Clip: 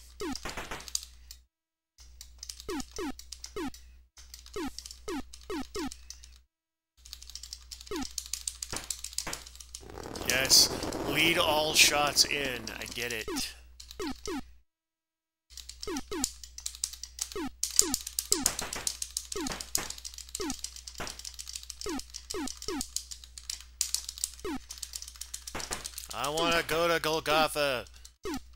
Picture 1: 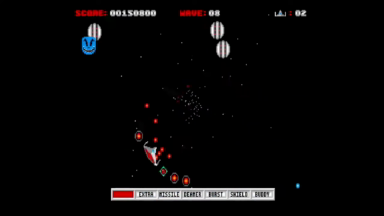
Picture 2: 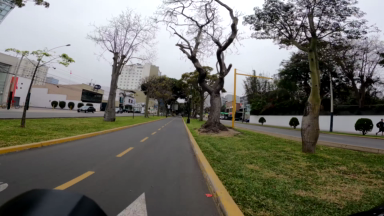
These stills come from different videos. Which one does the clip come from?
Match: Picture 1